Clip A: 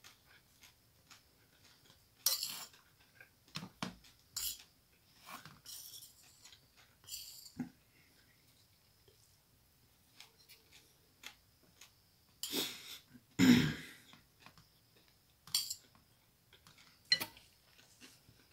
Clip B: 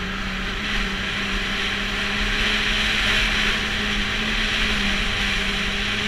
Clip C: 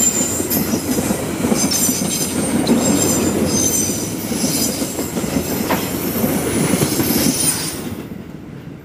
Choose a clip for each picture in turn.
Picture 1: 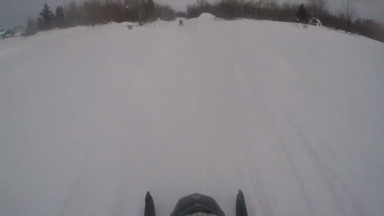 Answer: B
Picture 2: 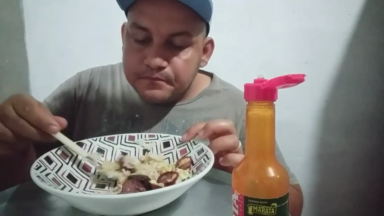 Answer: A